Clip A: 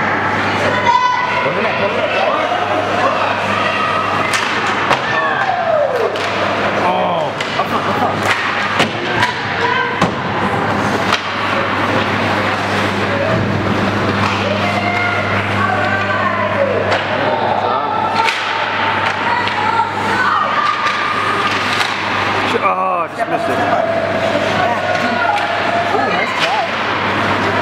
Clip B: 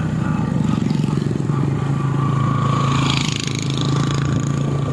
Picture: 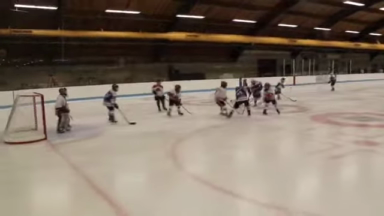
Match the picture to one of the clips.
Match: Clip A